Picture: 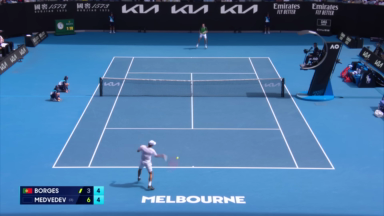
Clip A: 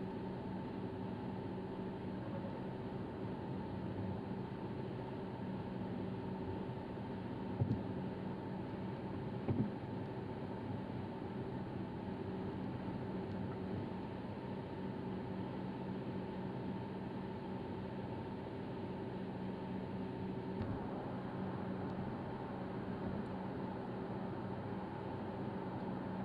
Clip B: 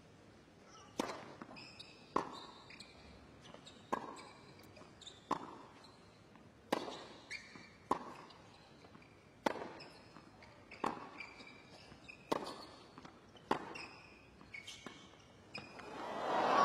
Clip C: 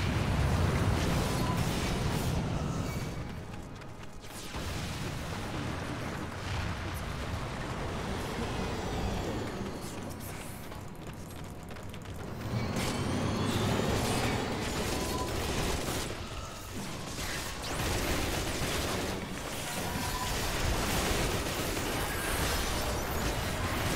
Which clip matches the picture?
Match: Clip B